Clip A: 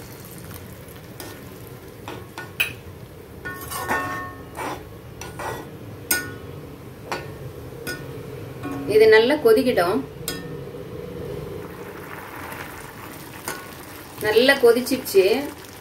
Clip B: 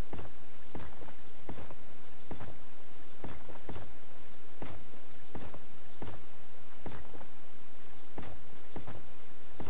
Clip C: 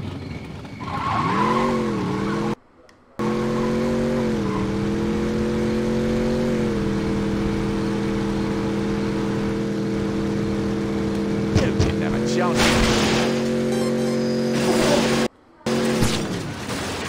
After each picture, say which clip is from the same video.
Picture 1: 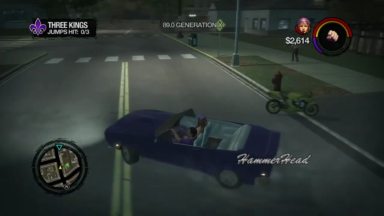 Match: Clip C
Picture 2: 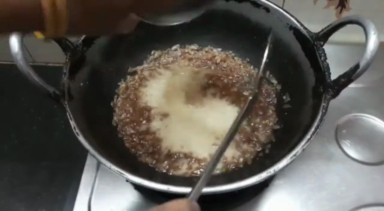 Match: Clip A